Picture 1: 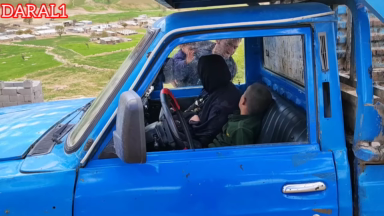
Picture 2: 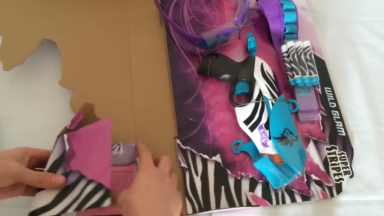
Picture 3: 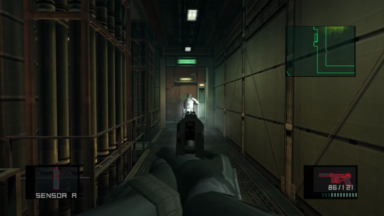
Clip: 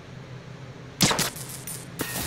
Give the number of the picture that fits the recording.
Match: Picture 3